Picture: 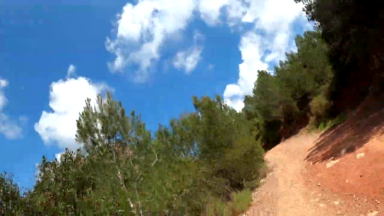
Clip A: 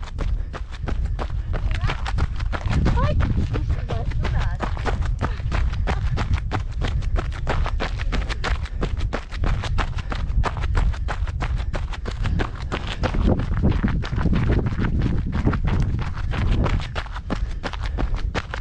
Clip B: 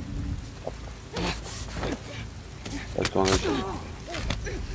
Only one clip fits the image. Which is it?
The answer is A